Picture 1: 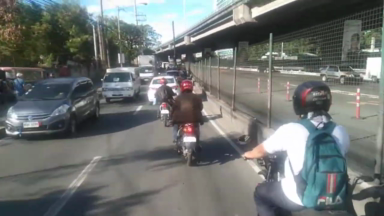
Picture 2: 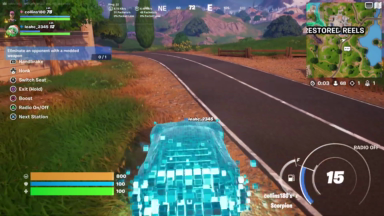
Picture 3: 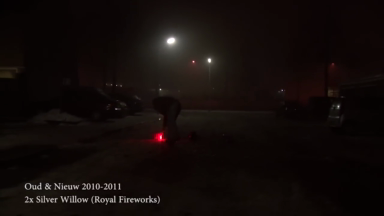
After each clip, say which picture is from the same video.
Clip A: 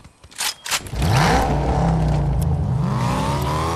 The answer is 2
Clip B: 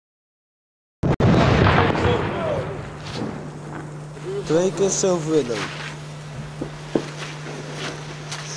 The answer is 3